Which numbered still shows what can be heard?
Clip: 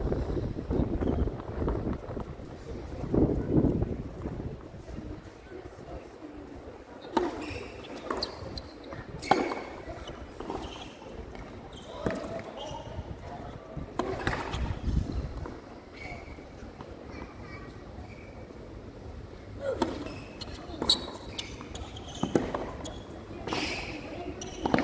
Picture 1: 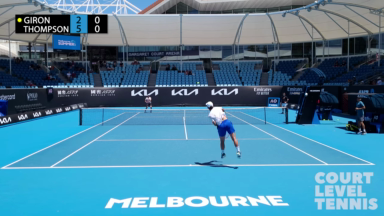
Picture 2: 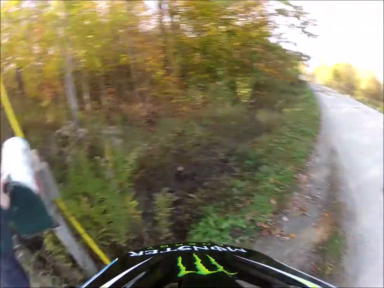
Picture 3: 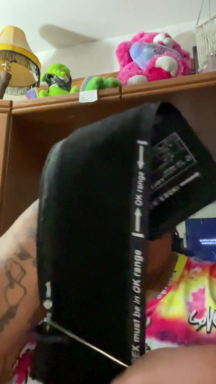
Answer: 1